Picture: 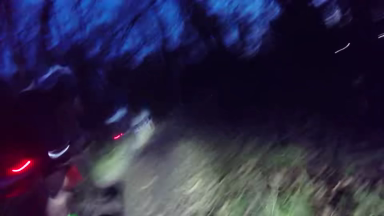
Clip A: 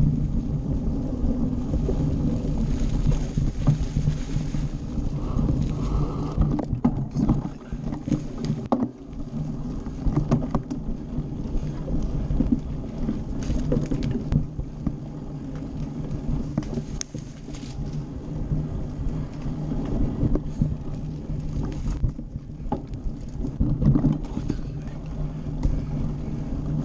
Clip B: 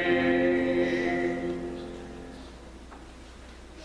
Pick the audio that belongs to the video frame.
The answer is A